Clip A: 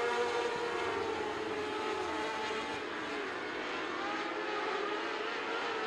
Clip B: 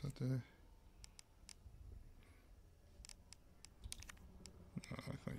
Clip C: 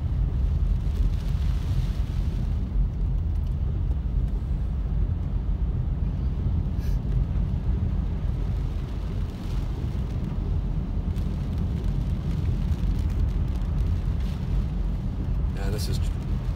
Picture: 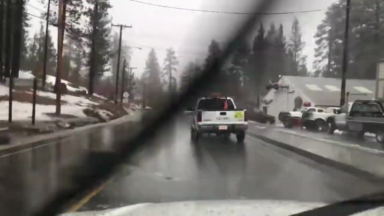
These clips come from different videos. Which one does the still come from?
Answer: C